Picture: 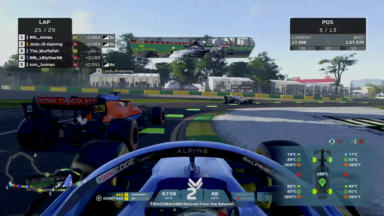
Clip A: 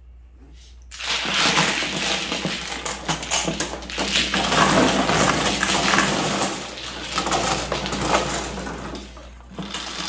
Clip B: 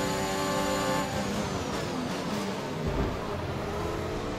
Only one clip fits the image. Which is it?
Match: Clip B